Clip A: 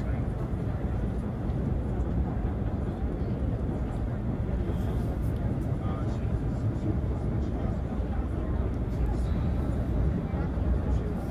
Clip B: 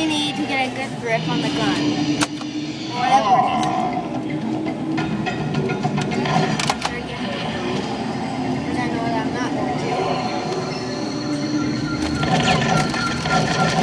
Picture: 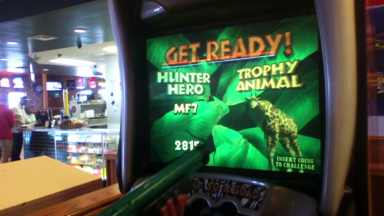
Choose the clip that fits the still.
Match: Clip B